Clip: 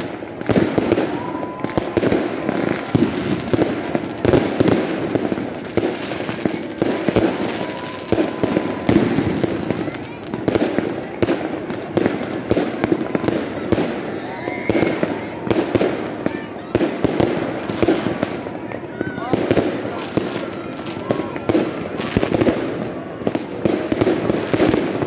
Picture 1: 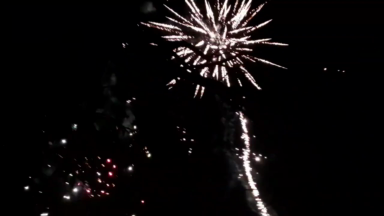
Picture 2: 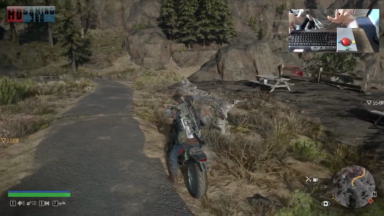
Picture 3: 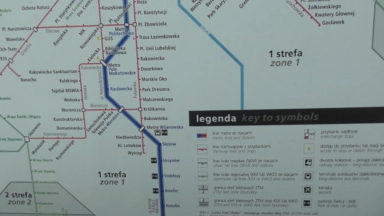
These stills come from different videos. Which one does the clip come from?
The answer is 1